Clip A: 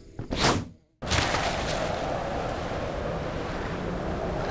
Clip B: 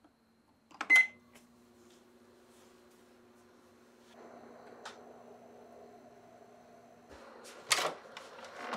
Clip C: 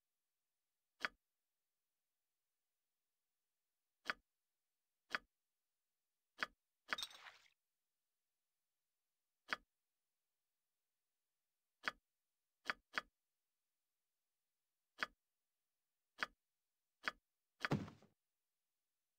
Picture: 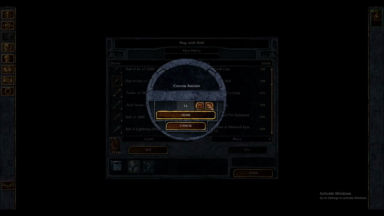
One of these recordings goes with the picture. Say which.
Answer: C